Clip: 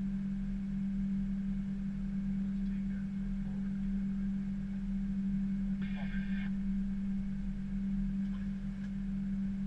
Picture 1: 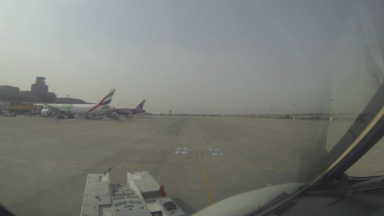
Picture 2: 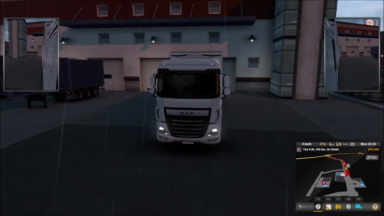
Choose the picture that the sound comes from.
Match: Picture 1